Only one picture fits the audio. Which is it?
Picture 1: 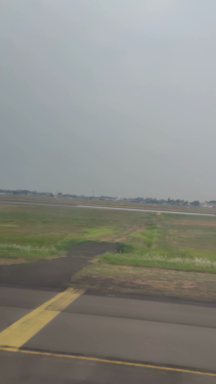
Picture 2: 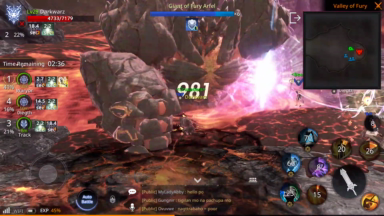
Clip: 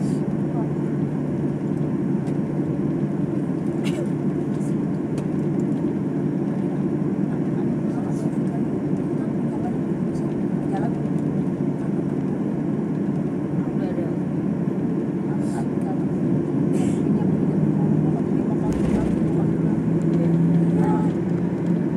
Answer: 1